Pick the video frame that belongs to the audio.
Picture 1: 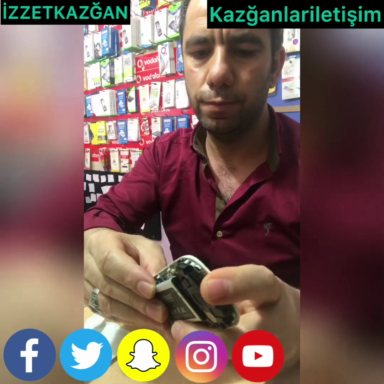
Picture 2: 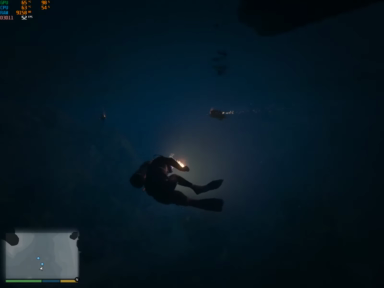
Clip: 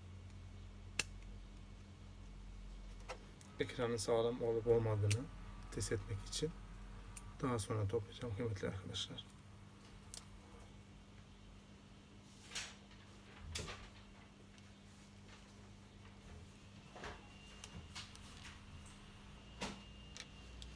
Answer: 1